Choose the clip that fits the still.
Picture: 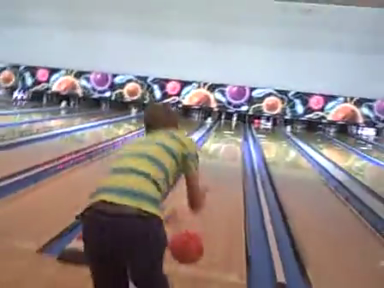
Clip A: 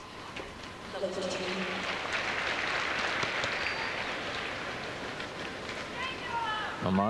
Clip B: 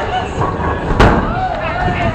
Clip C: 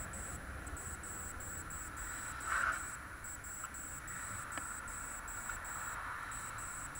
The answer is B